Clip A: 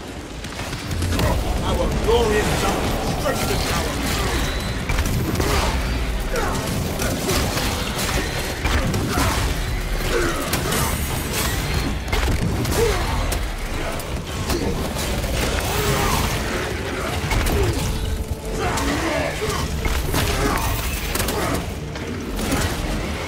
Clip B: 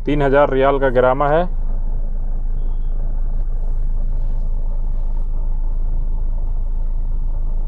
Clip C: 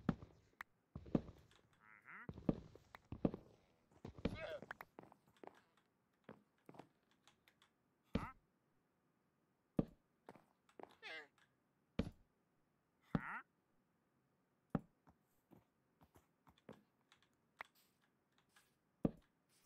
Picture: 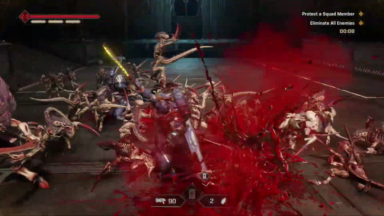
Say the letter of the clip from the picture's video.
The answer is A